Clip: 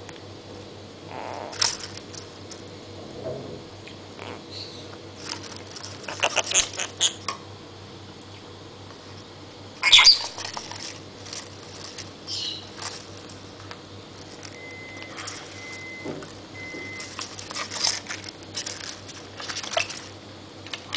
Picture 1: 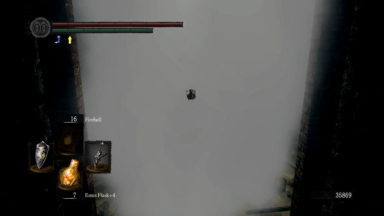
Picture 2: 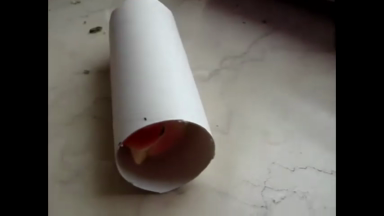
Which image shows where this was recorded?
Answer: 2